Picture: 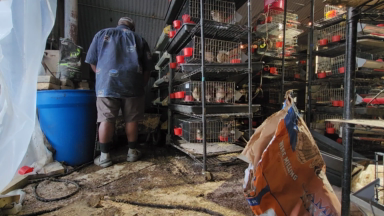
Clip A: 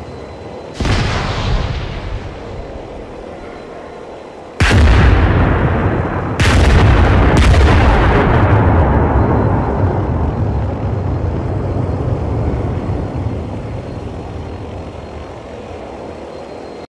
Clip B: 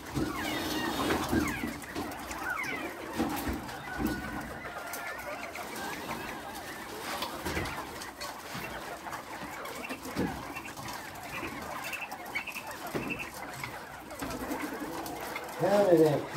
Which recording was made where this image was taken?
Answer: B